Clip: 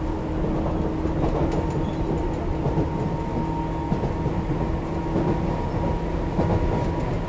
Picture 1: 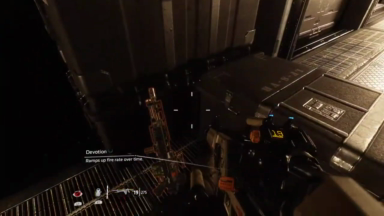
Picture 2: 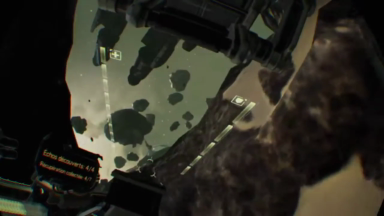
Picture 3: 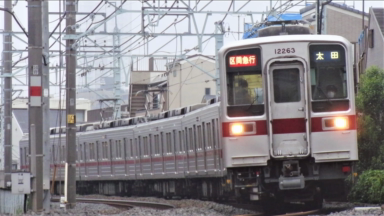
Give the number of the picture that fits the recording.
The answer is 3